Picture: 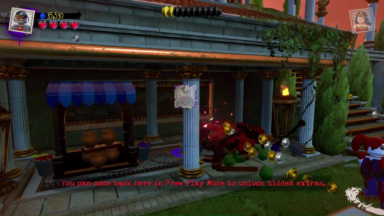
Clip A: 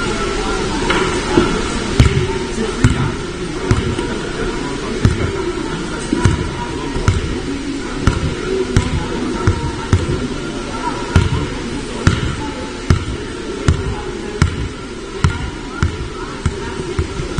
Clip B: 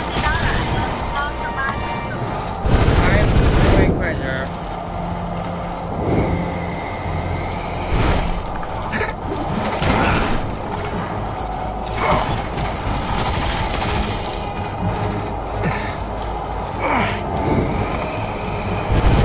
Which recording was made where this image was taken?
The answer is B